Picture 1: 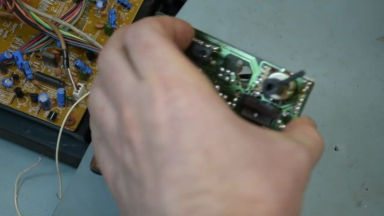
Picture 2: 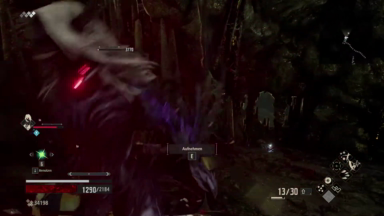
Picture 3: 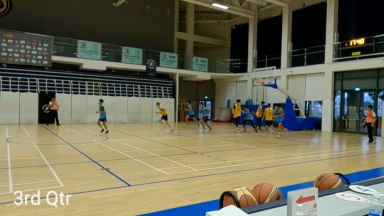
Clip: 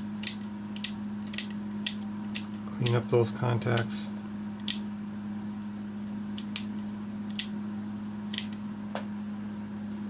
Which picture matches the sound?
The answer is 1